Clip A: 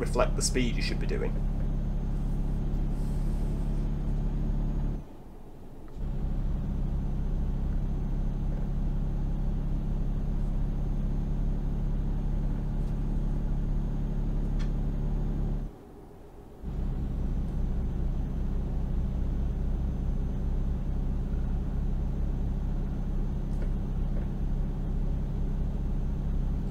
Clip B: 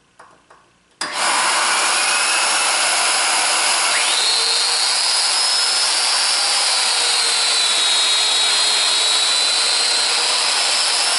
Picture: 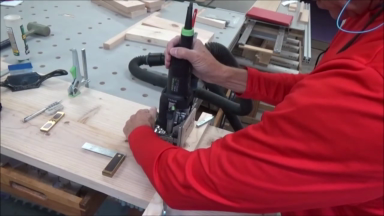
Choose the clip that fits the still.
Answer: B